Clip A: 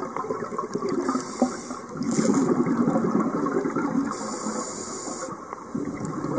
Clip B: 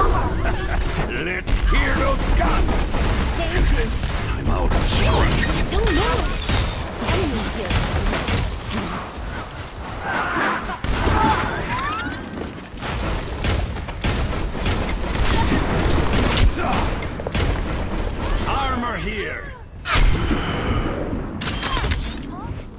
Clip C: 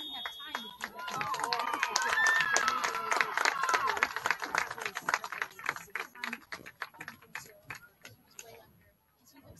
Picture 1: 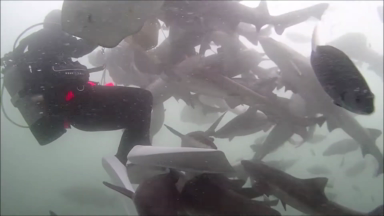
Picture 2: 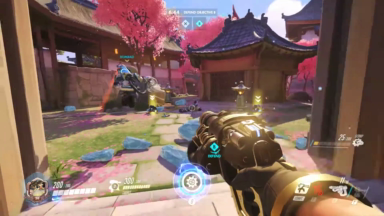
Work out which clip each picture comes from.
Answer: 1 A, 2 B